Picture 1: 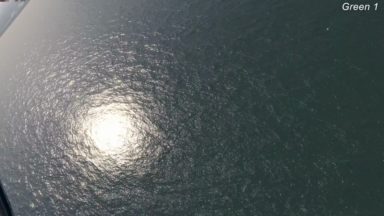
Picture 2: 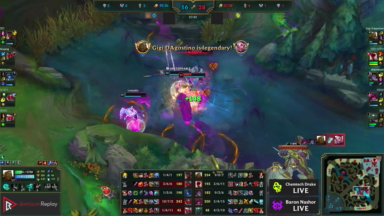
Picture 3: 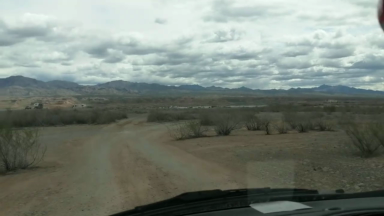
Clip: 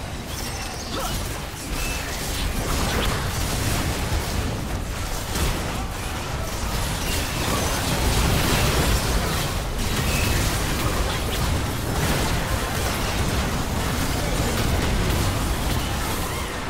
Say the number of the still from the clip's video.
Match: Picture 2